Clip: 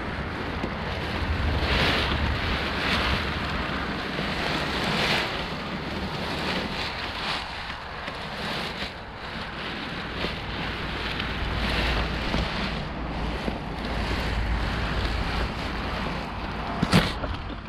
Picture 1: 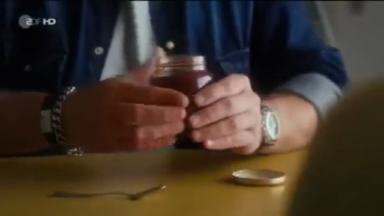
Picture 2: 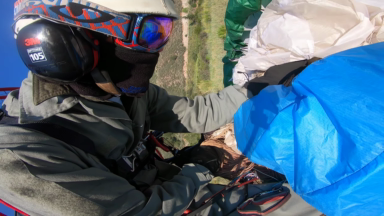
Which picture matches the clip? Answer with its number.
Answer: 2